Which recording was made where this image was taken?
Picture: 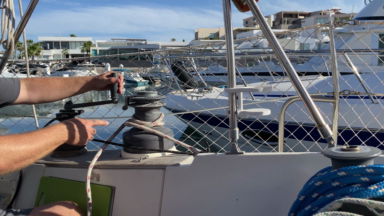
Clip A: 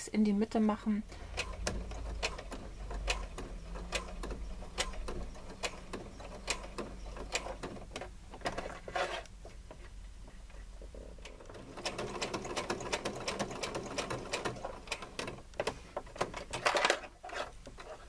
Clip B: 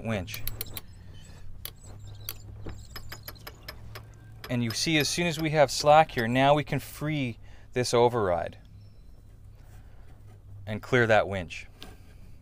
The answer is B